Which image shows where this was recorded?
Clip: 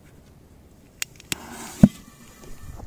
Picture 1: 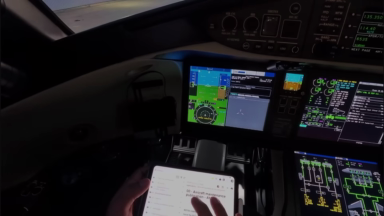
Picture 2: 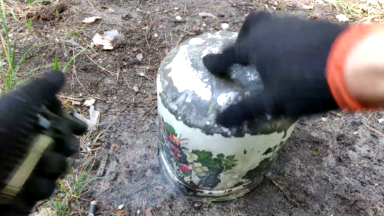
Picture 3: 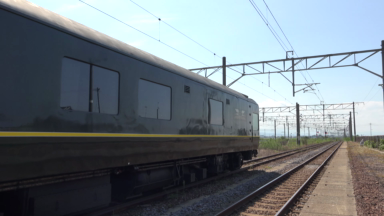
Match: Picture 2